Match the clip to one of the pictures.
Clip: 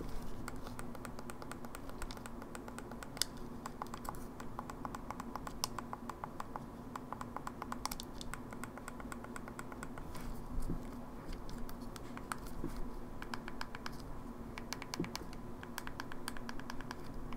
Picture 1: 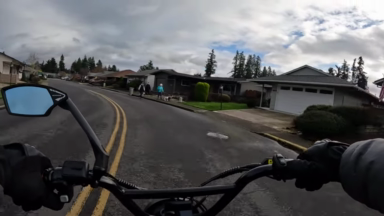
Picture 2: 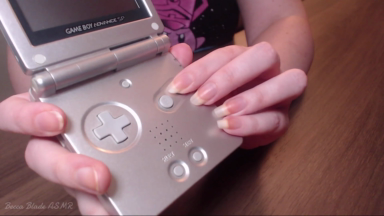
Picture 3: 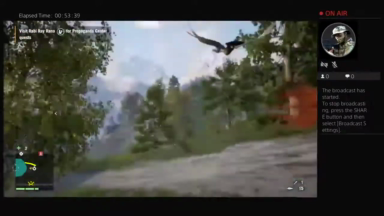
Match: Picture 2